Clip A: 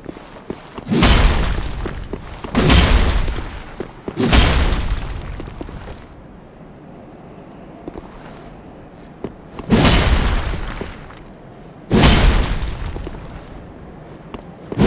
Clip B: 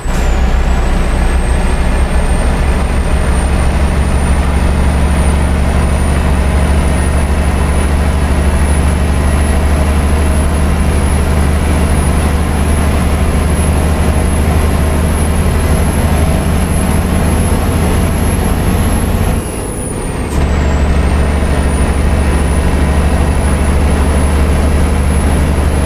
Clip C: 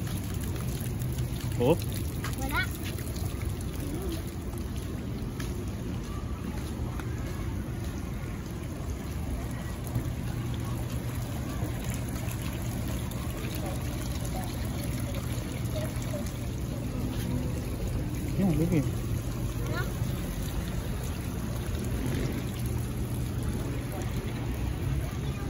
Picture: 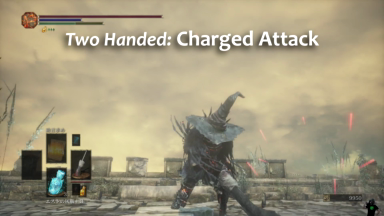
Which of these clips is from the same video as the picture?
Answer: A